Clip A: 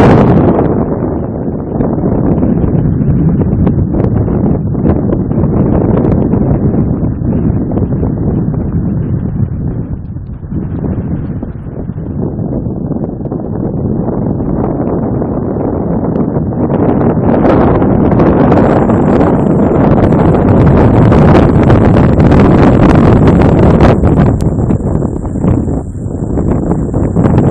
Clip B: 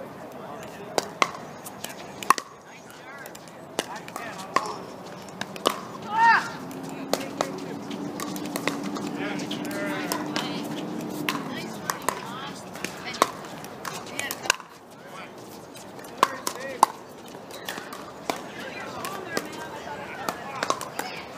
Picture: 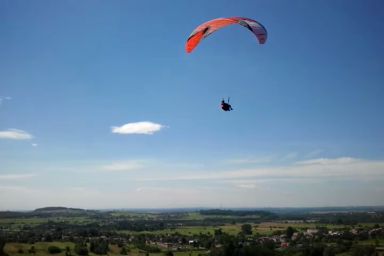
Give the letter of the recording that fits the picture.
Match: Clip A